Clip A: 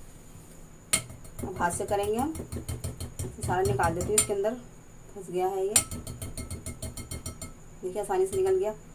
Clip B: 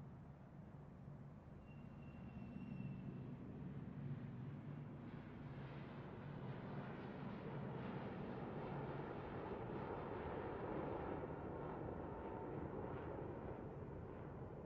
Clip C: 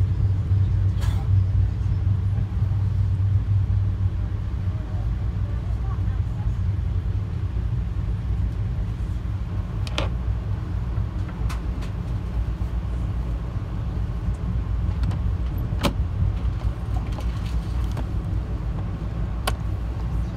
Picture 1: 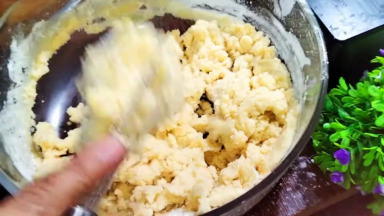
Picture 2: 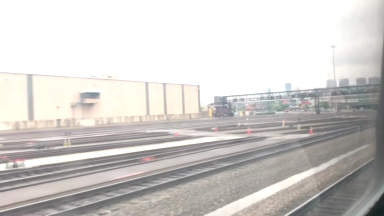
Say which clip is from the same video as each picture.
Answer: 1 A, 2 C